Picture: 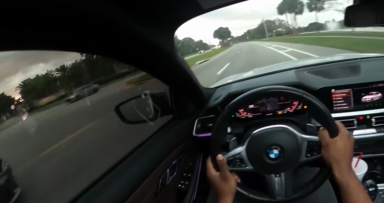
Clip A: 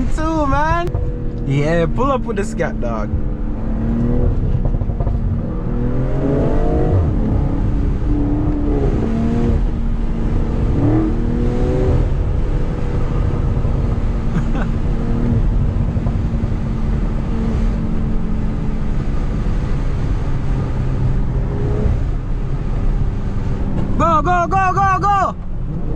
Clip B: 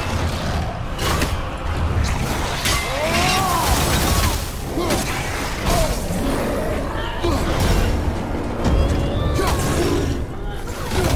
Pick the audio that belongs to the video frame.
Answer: A